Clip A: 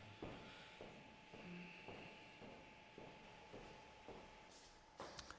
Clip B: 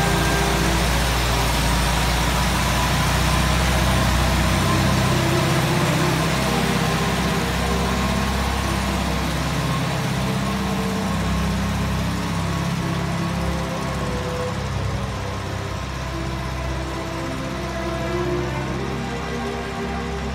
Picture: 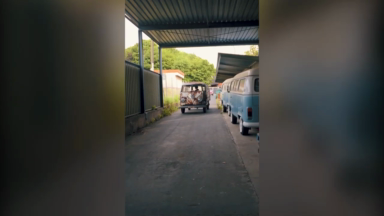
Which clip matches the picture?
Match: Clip B